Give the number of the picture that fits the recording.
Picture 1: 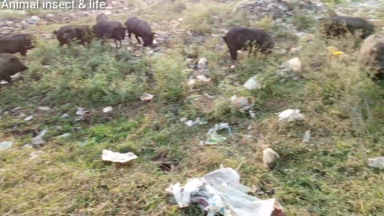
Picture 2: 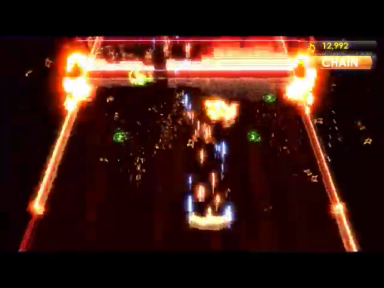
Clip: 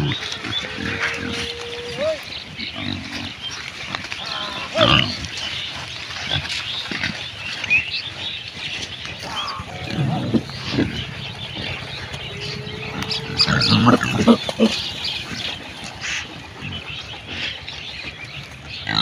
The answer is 1